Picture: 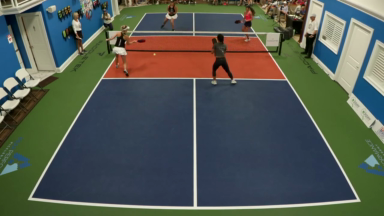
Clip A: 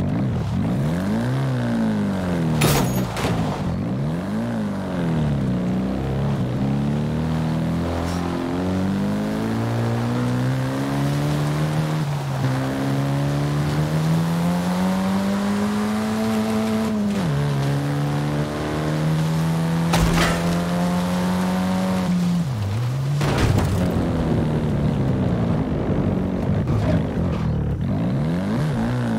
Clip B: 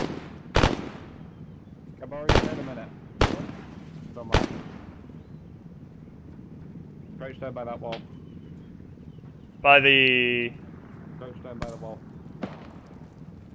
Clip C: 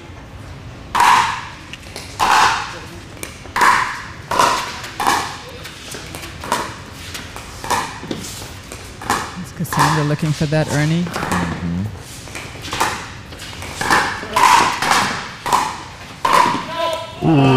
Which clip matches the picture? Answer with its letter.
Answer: C